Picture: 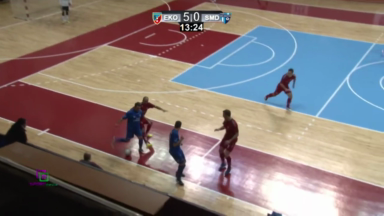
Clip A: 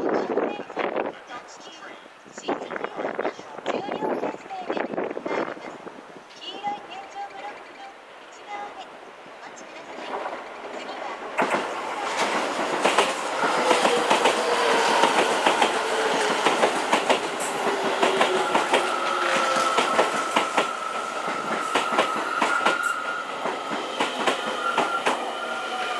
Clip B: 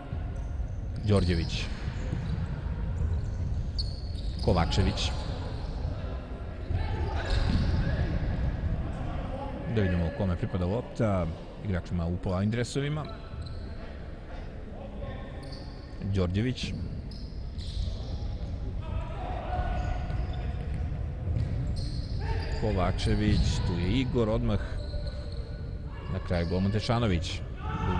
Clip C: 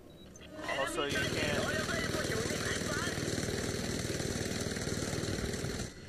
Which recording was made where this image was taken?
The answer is B